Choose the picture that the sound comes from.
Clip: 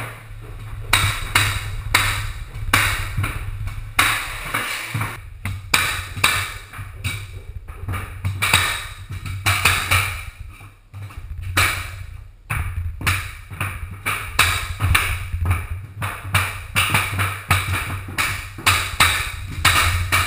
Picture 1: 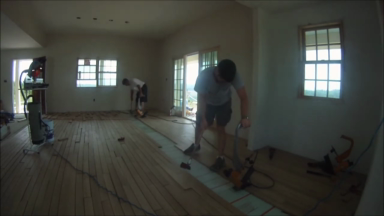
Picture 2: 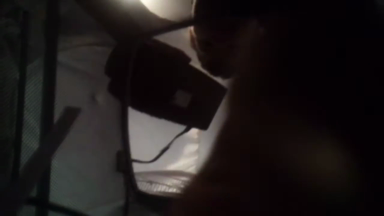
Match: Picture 1